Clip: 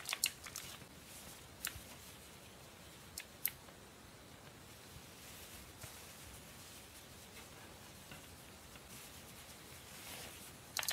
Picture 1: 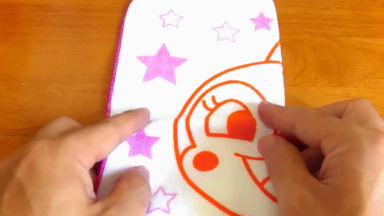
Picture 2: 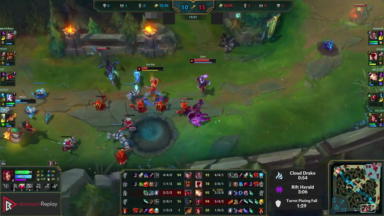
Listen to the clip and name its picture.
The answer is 1